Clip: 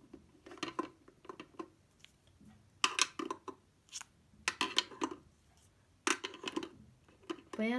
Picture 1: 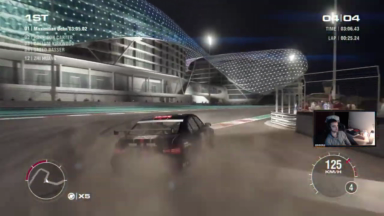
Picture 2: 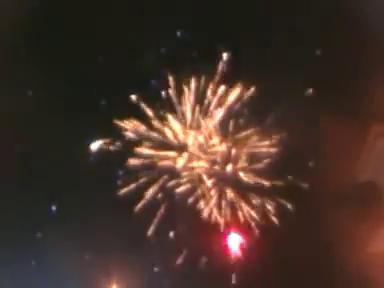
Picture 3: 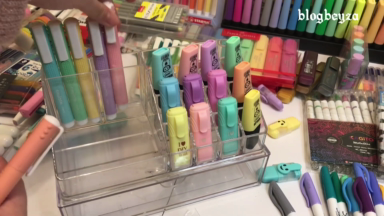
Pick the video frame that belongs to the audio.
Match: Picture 3